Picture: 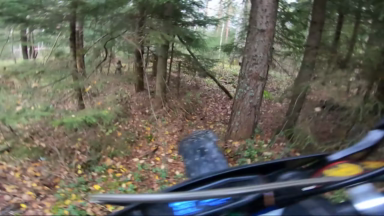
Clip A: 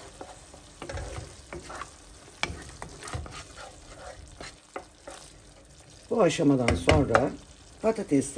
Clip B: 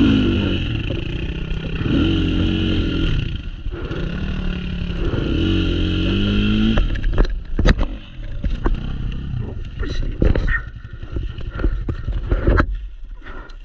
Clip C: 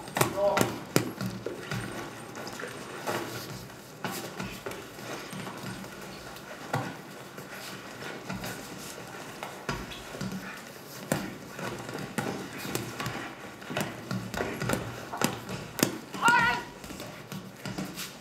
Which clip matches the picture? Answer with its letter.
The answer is B